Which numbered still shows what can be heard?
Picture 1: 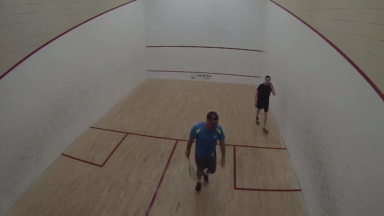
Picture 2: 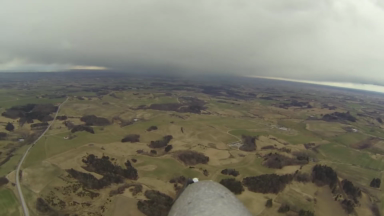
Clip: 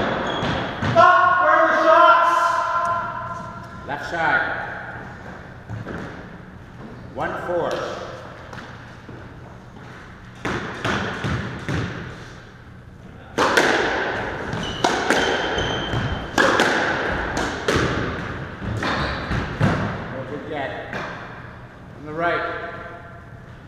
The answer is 1